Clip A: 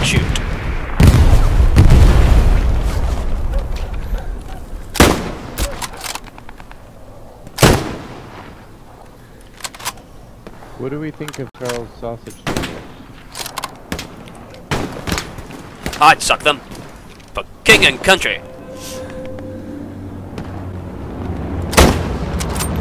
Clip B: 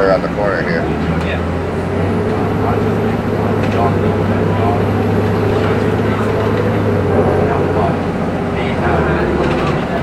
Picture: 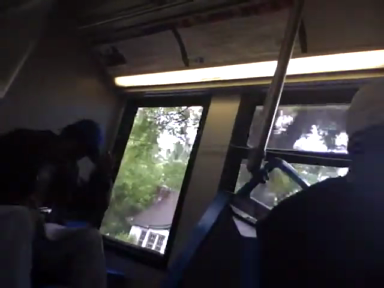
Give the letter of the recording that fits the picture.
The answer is B